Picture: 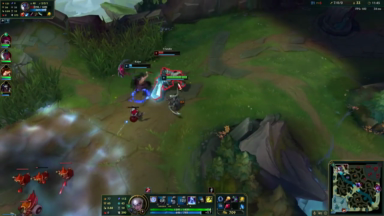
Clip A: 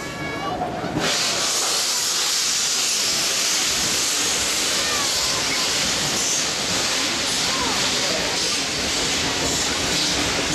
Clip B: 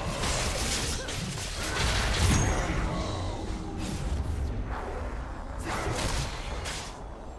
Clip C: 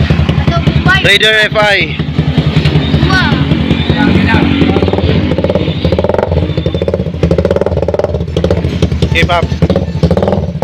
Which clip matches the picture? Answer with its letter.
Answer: B